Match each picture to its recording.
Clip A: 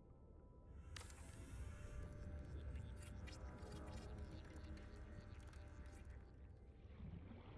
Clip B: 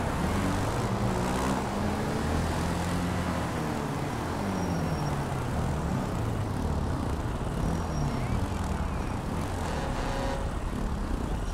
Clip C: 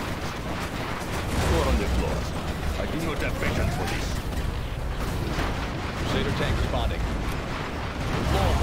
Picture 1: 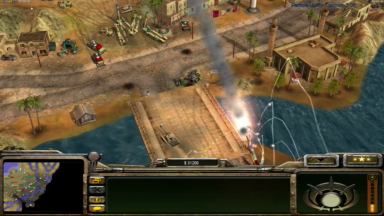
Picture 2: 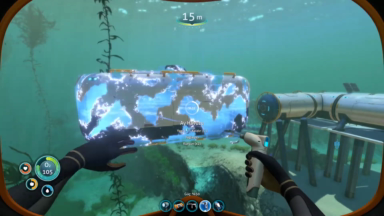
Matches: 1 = C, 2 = A